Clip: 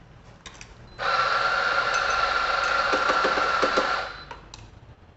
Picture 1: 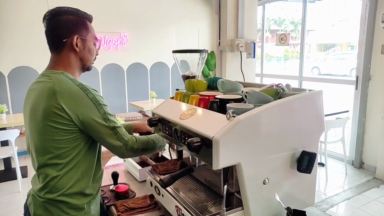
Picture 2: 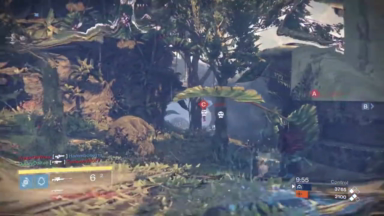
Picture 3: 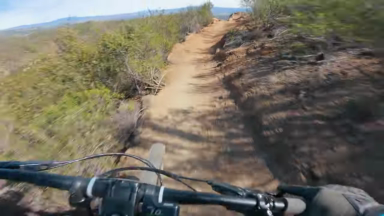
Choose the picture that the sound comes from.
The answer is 1